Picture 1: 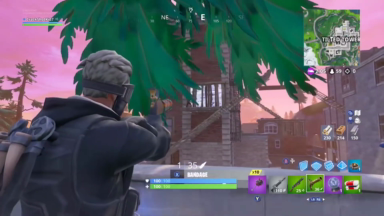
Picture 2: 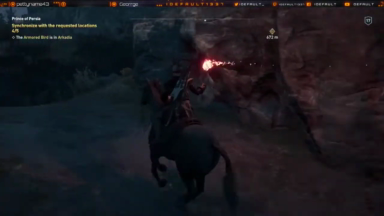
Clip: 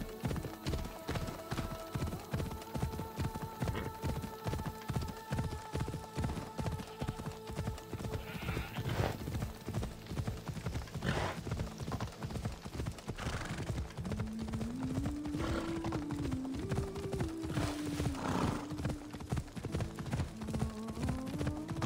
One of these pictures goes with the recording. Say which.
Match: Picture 2